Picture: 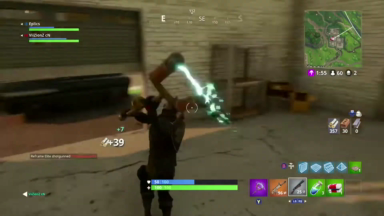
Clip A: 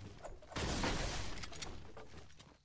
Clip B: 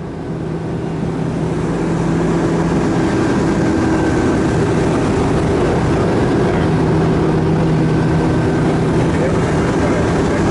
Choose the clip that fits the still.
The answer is A